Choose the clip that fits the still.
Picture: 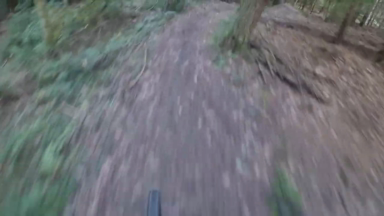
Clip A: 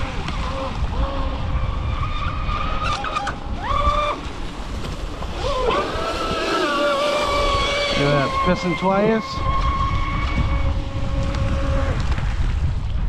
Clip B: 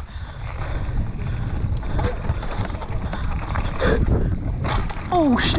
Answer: B